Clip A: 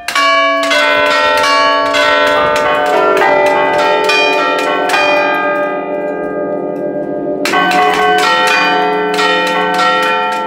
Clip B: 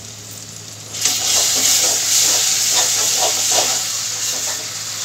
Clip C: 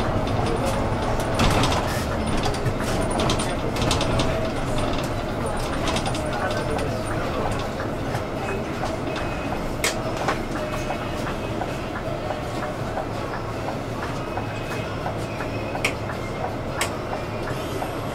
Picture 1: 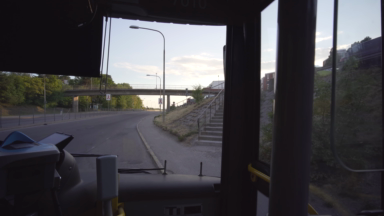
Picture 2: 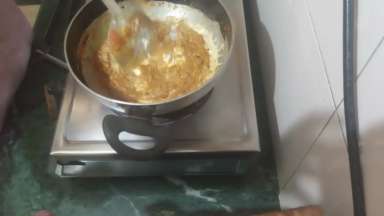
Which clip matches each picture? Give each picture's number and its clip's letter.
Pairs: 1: C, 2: B